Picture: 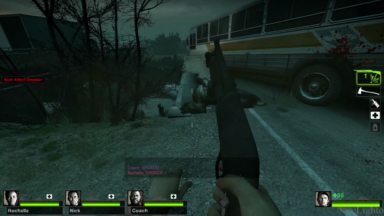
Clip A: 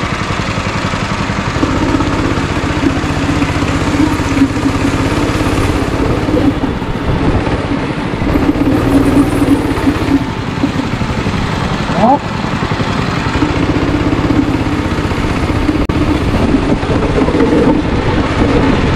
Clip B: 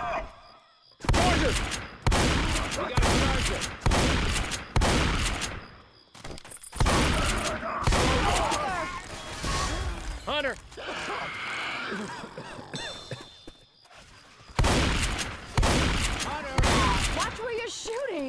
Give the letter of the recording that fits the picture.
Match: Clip B